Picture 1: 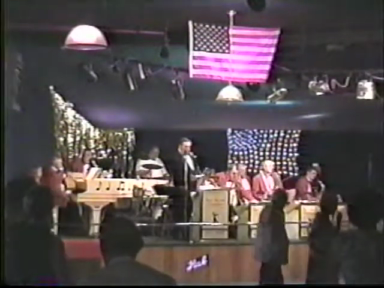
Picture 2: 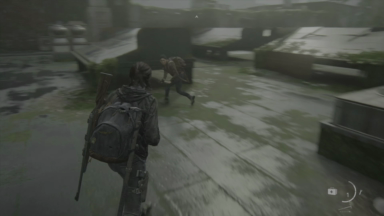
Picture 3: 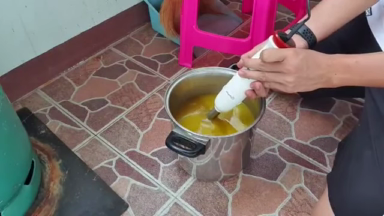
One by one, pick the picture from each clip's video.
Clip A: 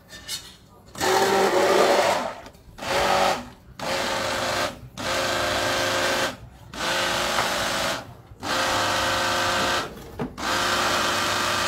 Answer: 3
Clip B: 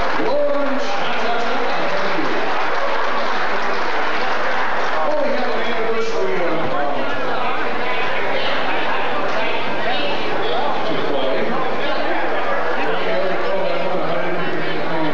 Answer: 1